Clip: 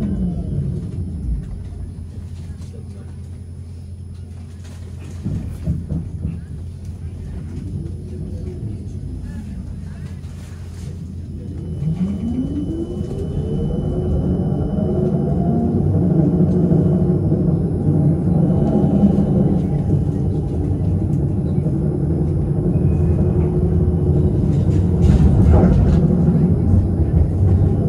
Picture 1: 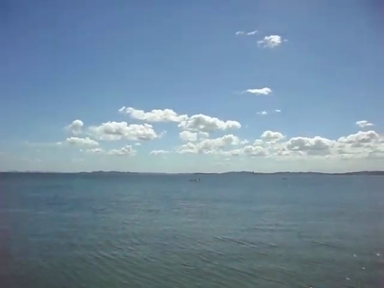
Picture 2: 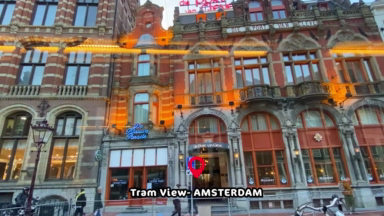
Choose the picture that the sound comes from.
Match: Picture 2